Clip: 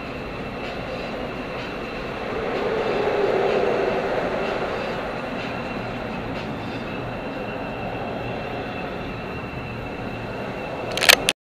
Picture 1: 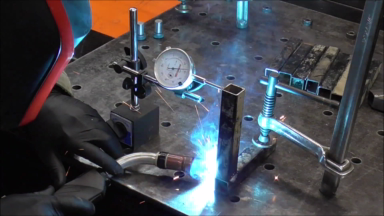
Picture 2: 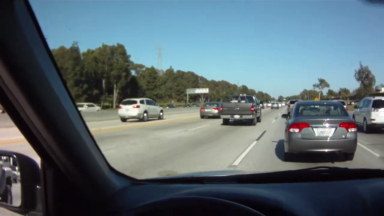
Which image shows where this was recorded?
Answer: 2